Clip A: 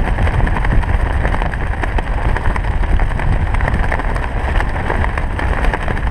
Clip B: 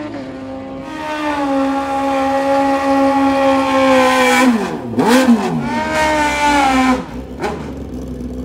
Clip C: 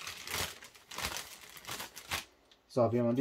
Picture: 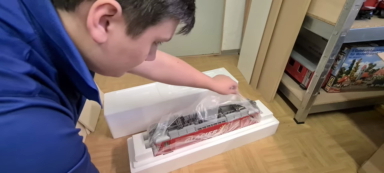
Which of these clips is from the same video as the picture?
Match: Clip C